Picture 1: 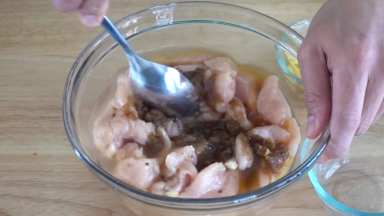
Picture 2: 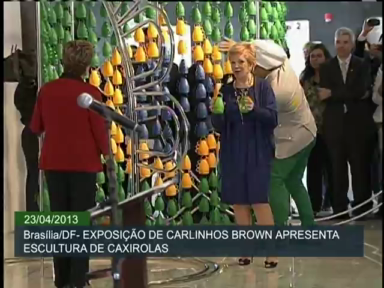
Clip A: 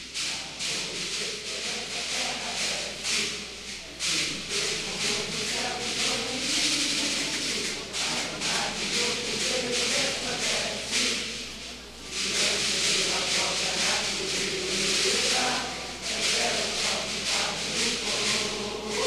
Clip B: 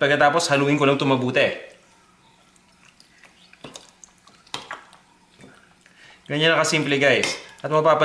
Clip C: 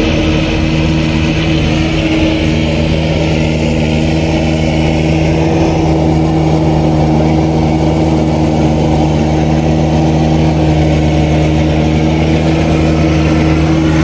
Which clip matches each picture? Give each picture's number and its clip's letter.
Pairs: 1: B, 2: A